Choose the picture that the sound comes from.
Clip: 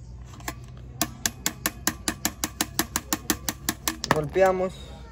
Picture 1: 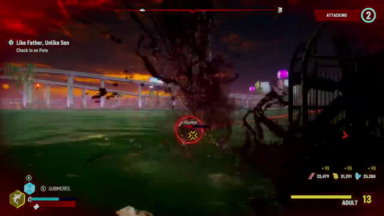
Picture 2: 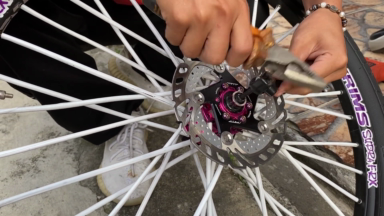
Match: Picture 2